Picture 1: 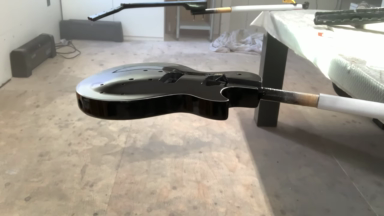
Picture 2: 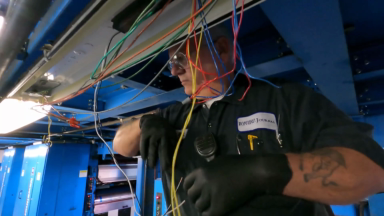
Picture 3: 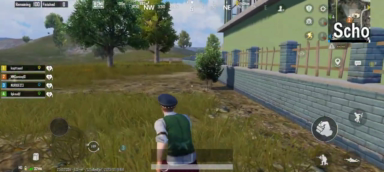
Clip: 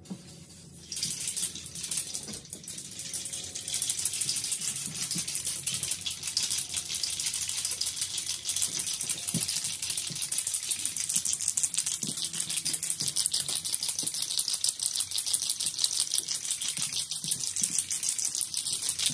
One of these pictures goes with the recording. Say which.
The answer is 1